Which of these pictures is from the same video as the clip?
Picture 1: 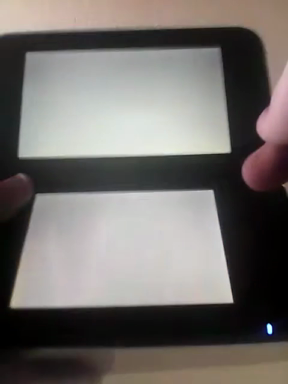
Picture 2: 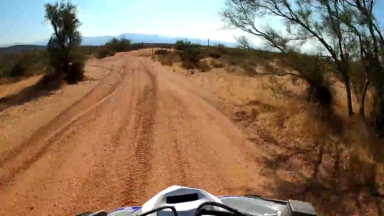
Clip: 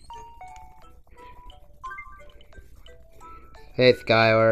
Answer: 1